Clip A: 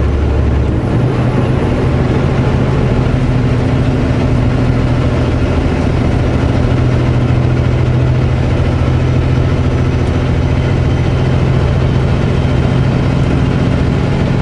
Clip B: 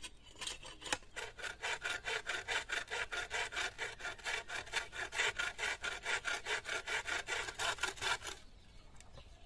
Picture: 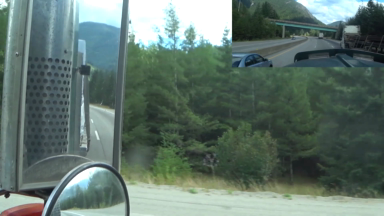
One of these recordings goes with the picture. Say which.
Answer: A